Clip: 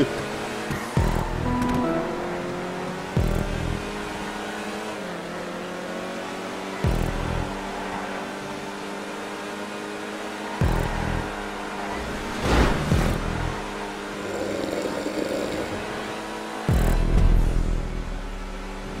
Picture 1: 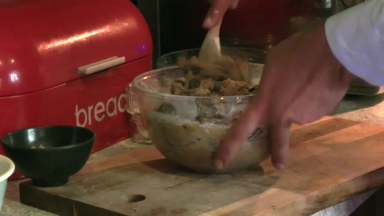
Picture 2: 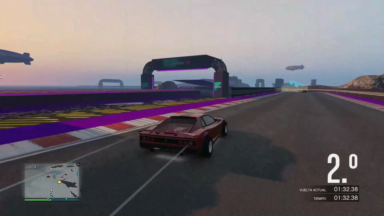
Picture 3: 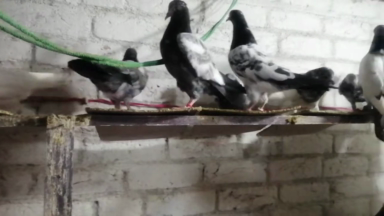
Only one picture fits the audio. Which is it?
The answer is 2